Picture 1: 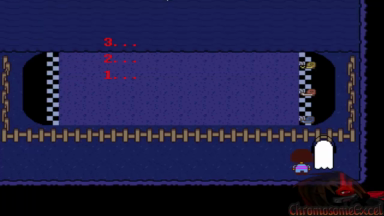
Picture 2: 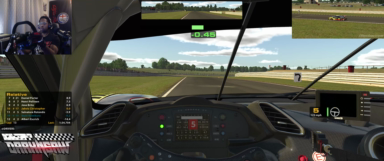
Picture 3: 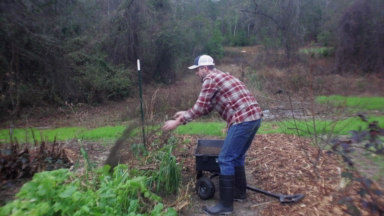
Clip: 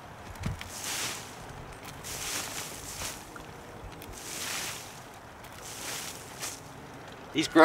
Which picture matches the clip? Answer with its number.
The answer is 3